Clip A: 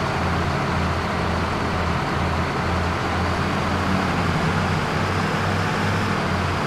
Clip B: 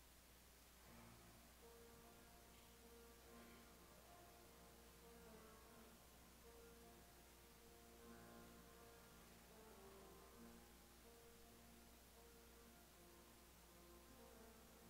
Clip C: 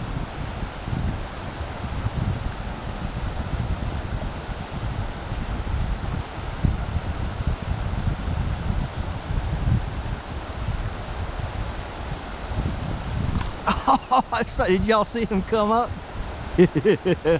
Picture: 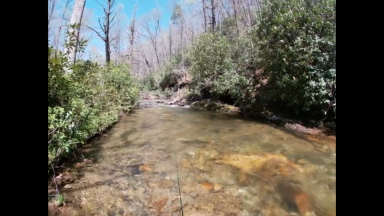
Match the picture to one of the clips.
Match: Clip C